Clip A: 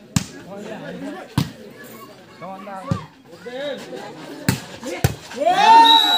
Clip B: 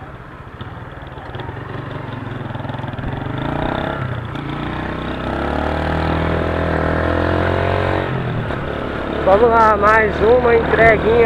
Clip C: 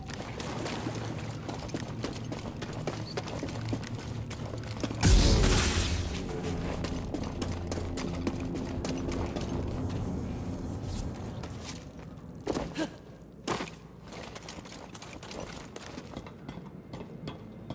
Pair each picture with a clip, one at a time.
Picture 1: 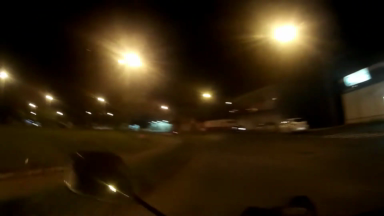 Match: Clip B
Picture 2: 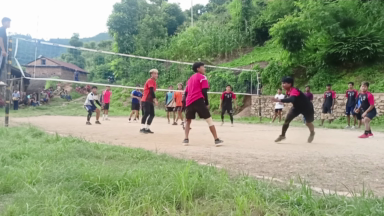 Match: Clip A